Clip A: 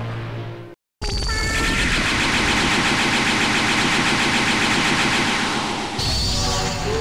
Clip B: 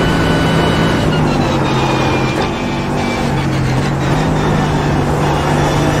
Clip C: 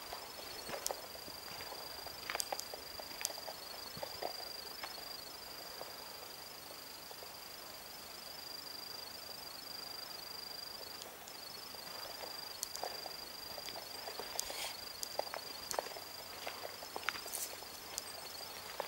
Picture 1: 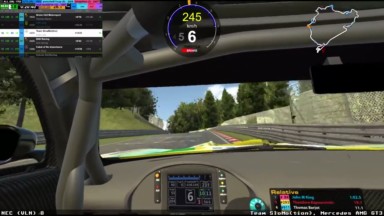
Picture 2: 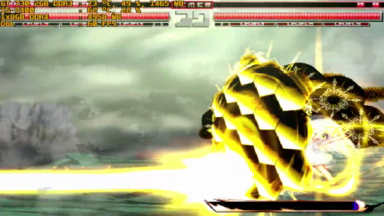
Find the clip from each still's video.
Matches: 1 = B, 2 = A